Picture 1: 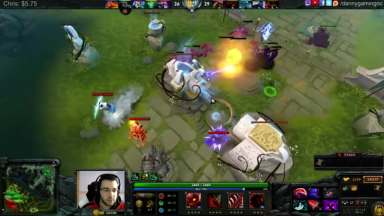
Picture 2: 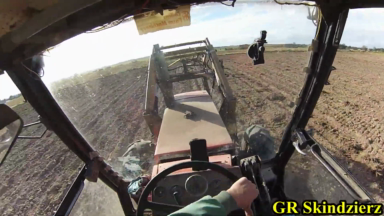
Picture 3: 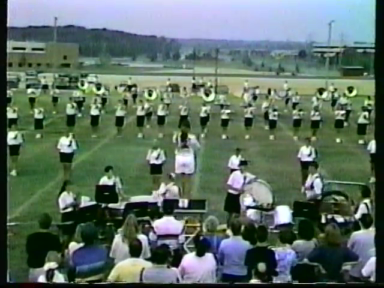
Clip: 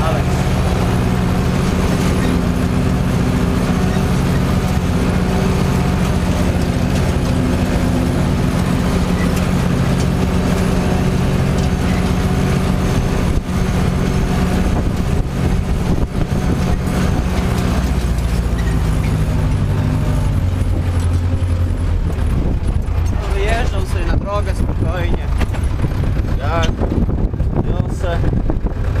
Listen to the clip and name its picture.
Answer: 2